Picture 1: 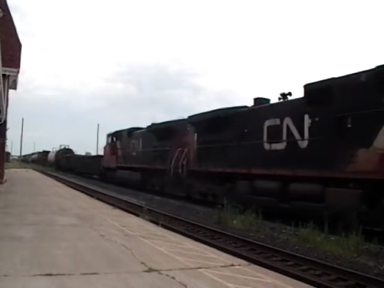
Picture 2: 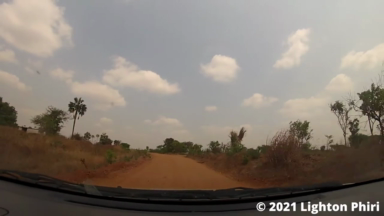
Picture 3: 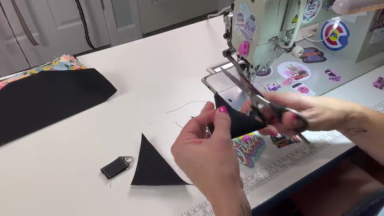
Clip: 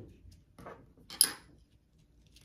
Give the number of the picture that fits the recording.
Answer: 3